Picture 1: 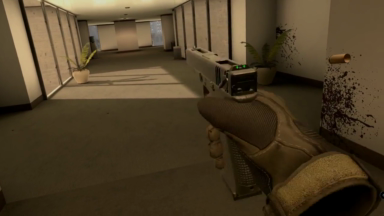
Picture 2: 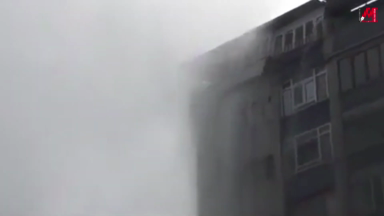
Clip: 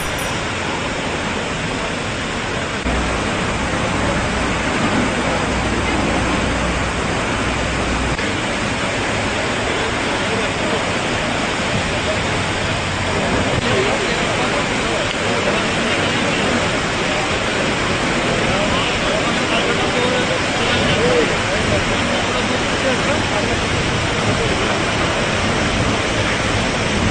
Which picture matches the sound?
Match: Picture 2